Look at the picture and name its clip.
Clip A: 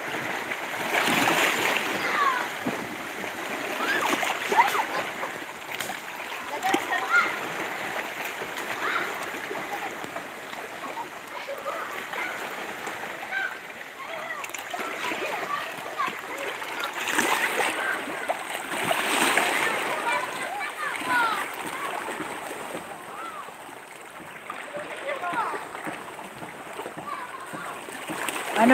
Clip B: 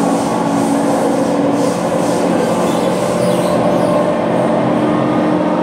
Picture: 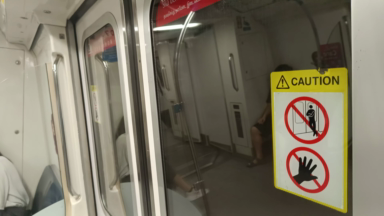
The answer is B